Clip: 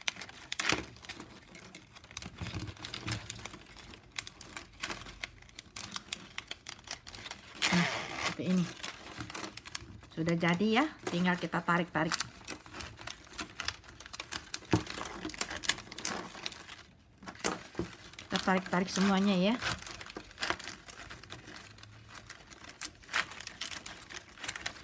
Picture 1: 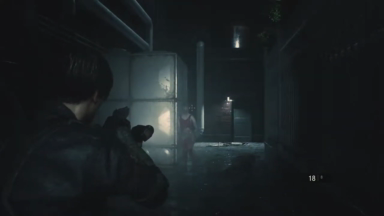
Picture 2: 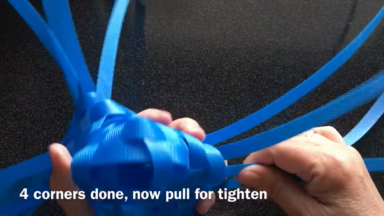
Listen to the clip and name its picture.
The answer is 2